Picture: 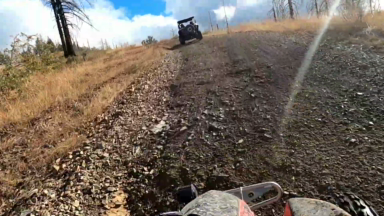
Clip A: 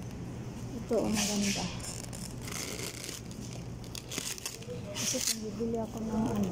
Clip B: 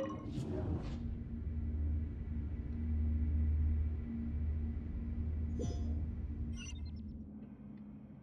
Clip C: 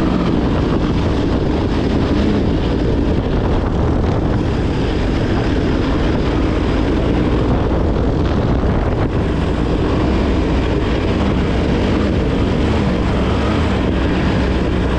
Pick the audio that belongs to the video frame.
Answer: C